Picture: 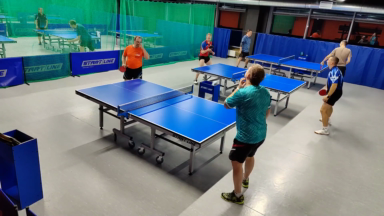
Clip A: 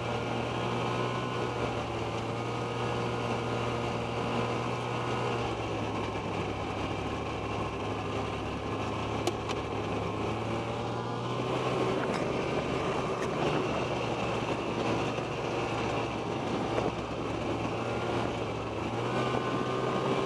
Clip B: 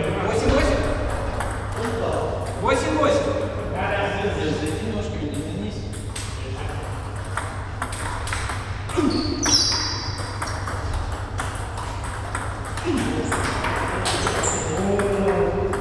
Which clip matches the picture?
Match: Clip B